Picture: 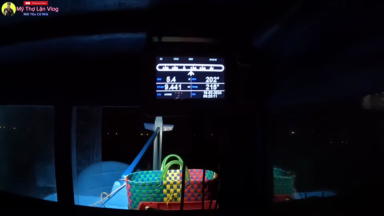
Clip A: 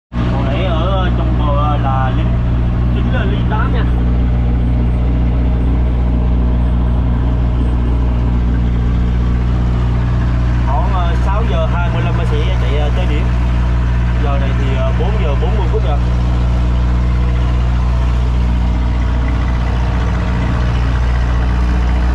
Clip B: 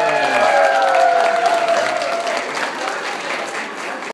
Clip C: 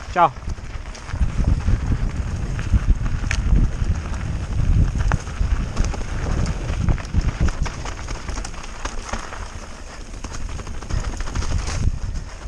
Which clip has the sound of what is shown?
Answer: A